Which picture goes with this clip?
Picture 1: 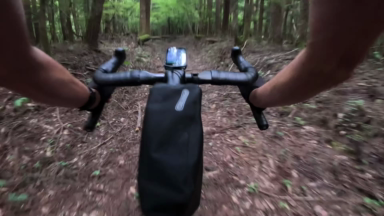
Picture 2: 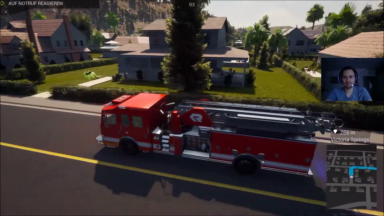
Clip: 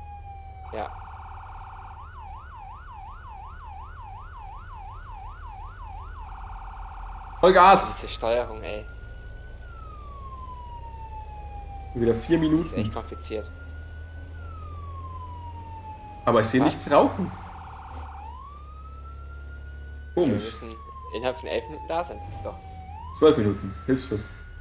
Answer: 2